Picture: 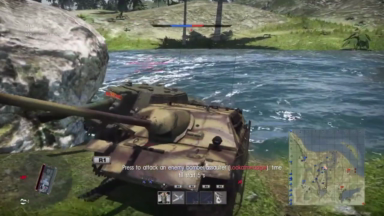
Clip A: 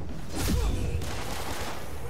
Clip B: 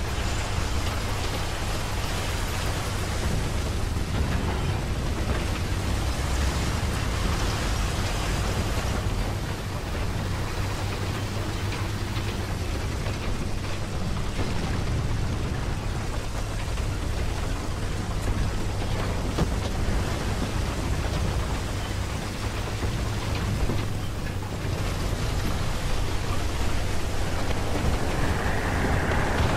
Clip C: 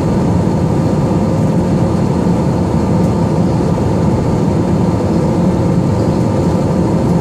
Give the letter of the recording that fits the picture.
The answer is B